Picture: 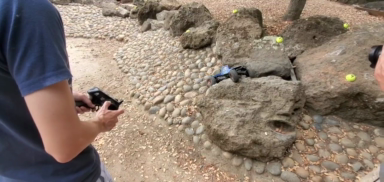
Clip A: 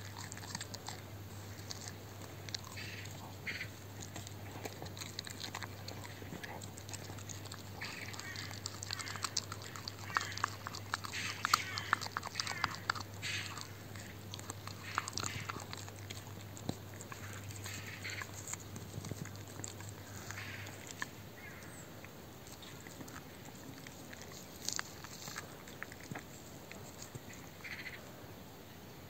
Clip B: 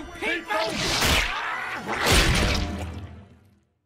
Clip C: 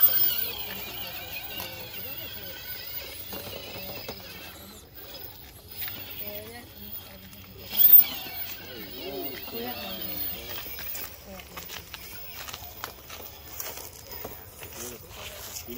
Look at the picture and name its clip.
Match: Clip C